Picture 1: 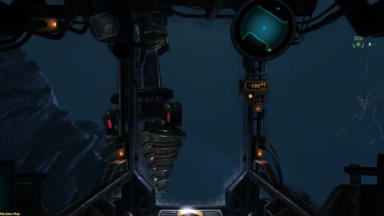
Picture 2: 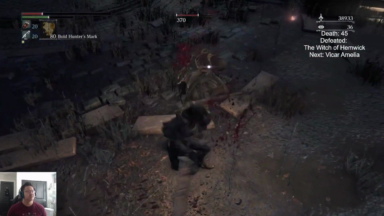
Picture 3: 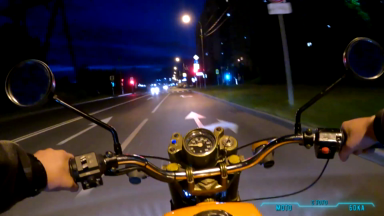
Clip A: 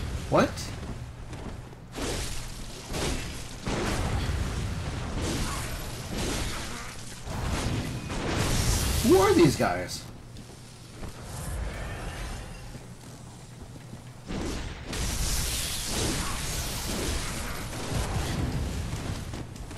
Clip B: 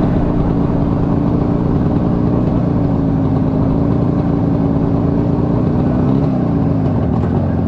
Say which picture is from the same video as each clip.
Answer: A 2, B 3